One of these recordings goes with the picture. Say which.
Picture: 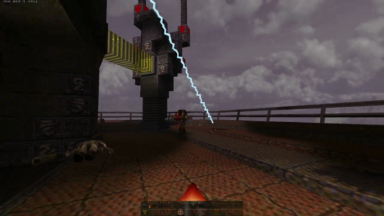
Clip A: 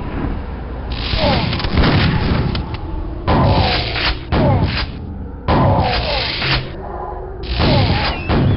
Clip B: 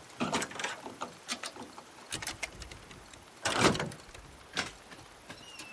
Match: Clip A